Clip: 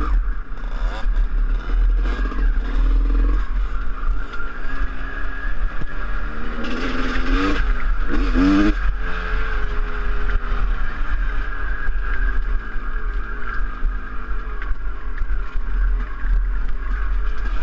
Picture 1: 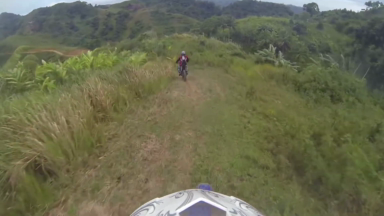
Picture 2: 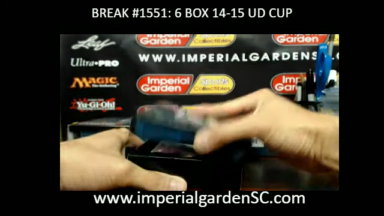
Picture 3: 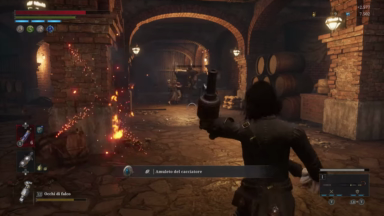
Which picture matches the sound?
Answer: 1